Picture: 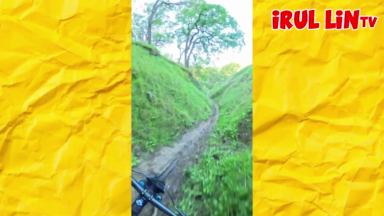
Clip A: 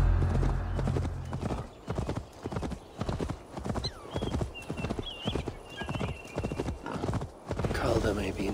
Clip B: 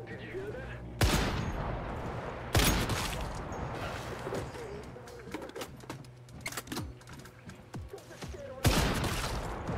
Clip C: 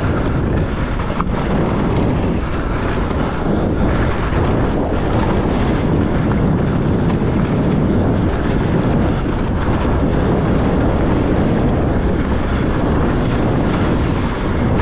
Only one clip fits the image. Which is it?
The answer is C